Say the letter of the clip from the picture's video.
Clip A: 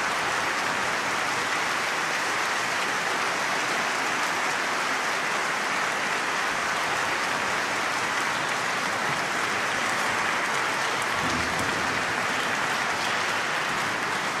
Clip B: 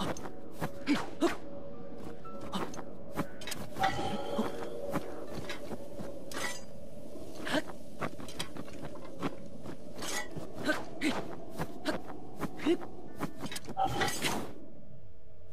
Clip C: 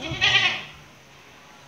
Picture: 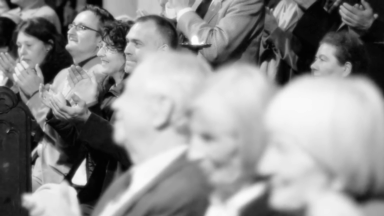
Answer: A